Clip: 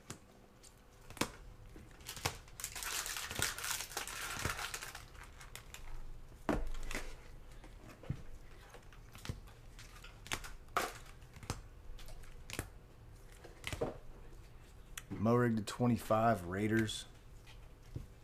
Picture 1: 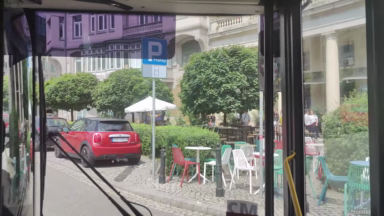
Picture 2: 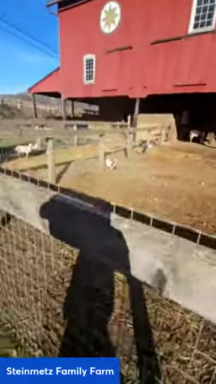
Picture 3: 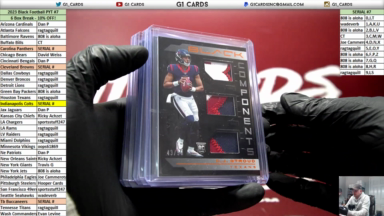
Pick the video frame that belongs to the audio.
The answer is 3